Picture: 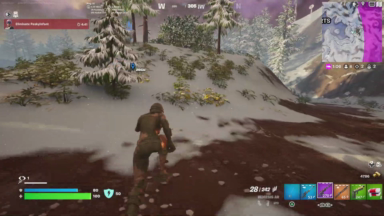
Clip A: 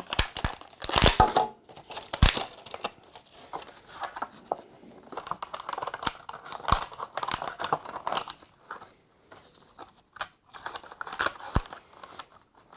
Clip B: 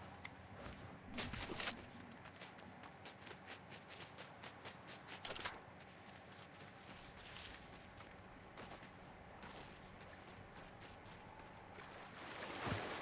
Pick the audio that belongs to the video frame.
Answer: B